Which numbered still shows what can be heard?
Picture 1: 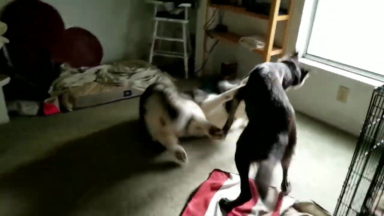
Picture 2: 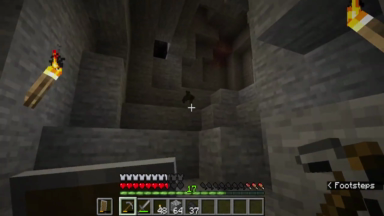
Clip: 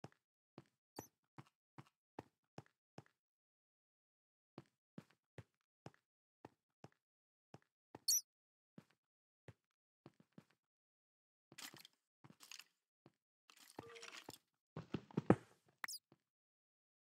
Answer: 2